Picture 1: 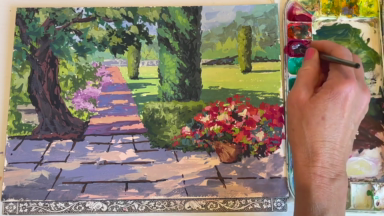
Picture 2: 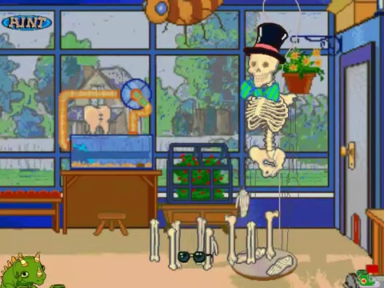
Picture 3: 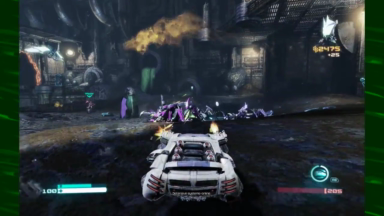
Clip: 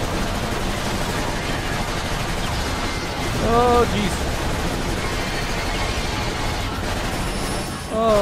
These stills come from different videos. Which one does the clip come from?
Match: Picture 3